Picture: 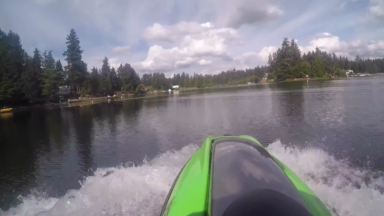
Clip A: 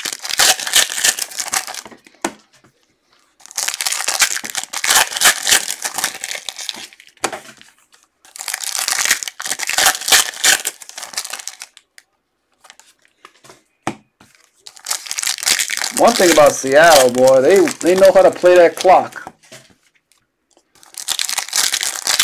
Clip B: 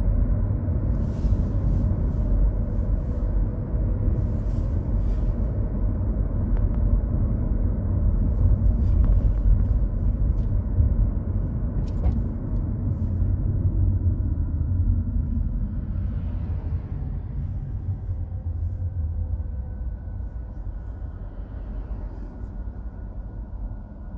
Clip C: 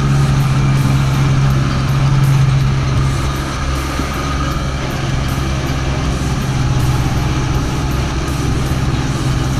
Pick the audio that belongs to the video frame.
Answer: C